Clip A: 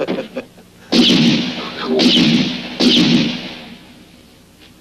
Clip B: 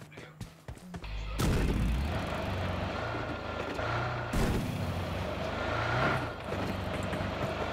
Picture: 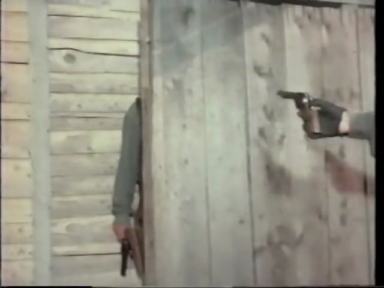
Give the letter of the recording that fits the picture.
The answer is A